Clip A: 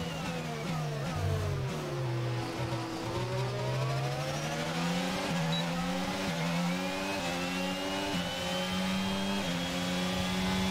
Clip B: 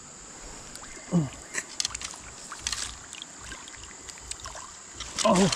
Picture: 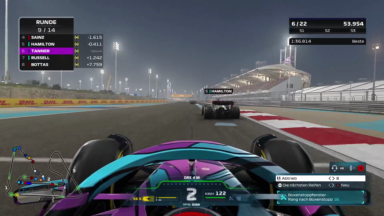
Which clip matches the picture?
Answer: A